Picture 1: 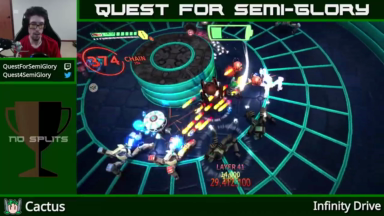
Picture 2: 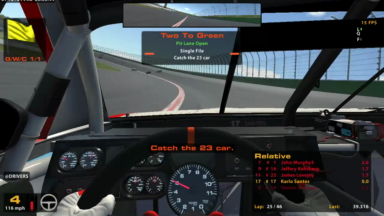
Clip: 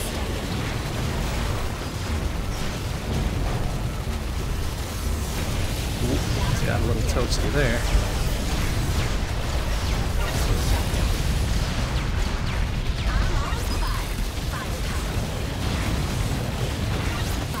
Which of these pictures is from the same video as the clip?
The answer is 1